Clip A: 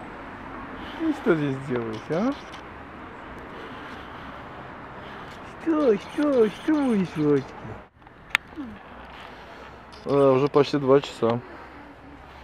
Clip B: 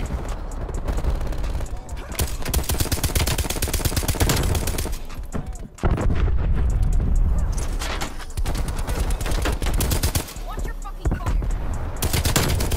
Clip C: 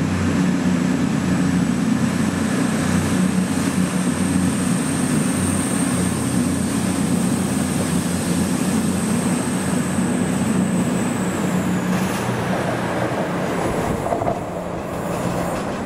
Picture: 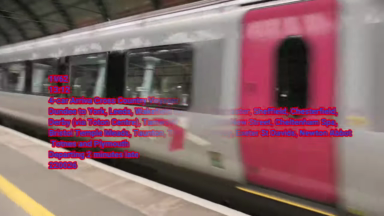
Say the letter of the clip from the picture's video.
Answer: C